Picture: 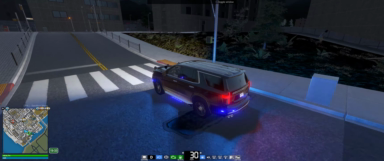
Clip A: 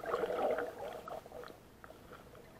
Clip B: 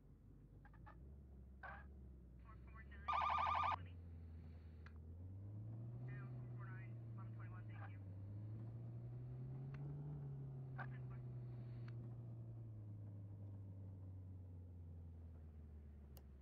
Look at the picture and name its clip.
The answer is B